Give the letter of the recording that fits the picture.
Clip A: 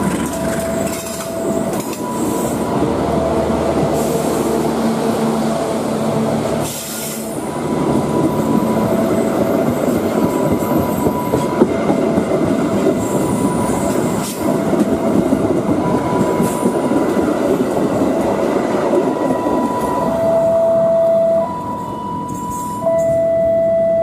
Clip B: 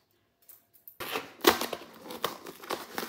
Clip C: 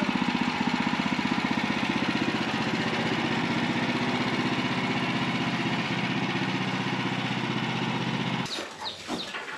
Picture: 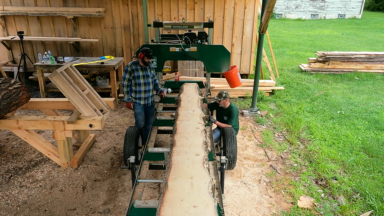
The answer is C